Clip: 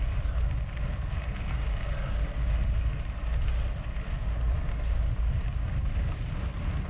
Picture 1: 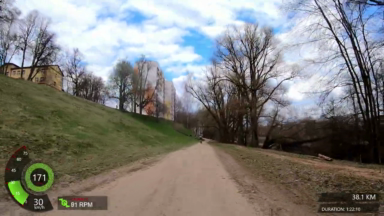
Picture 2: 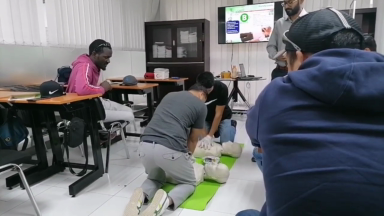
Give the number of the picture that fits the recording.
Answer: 1